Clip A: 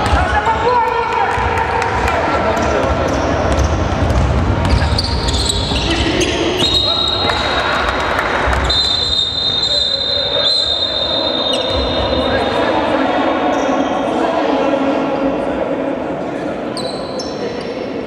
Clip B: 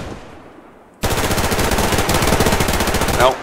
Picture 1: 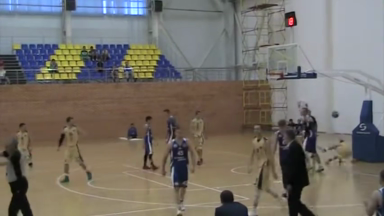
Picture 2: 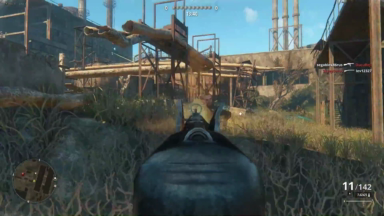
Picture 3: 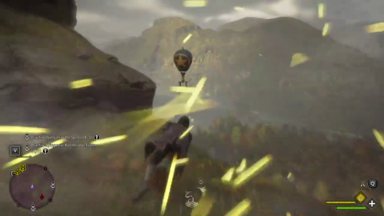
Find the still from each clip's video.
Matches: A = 1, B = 2